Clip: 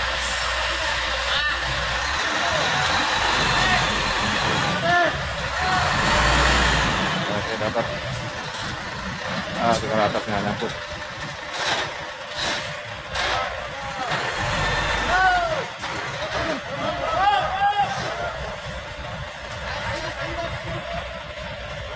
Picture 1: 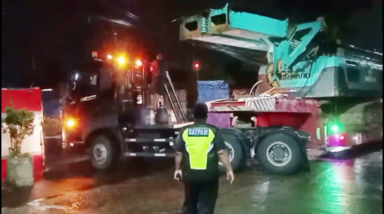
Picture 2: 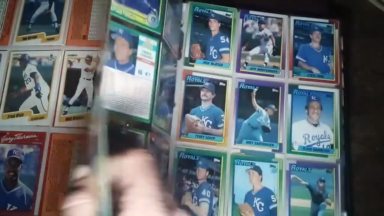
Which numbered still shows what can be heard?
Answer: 1